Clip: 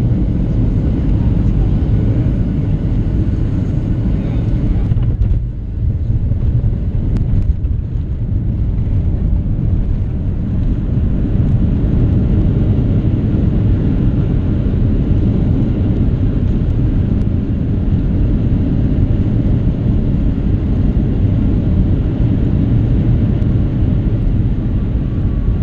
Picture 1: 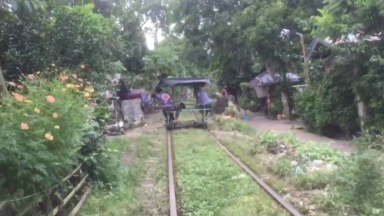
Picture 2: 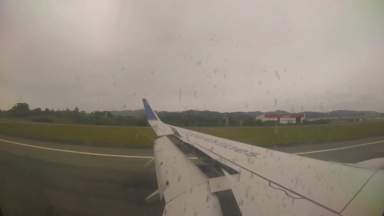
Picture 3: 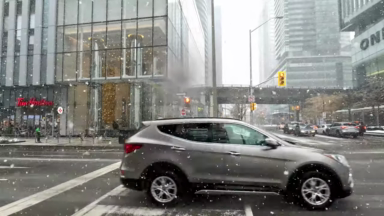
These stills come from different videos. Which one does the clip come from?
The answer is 2